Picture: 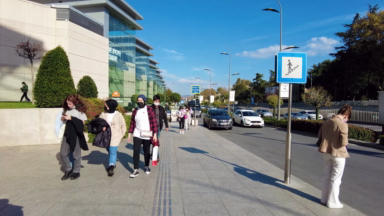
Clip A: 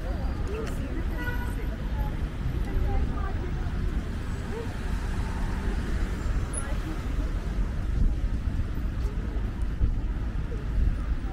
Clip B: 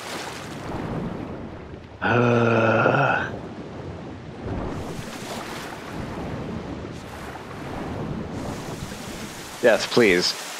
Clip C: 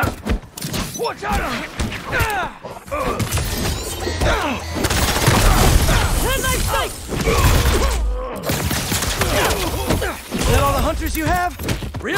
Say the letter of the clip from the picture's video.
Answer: A